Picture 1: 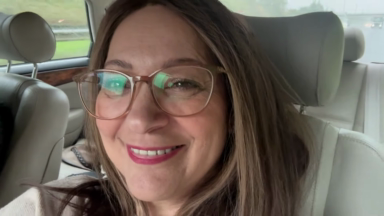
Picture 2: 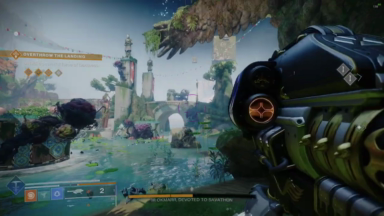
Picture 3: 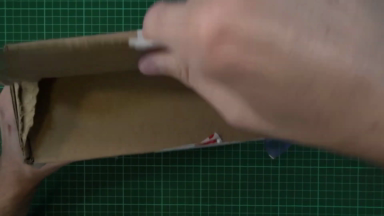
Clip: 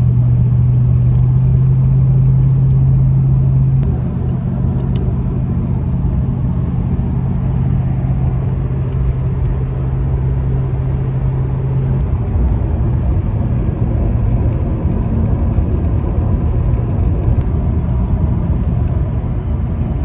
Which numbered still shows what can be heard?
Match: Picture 1